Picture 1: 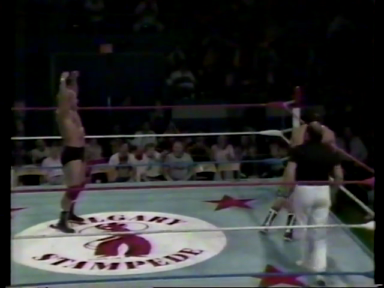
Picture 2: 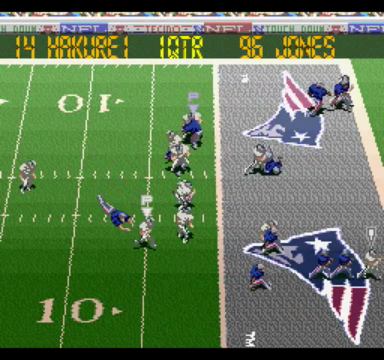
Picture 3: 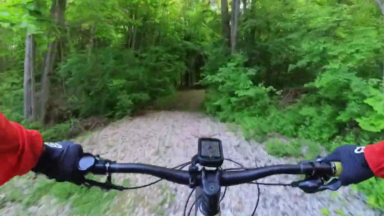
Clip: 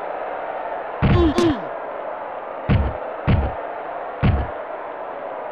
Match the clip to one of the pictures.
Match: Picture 2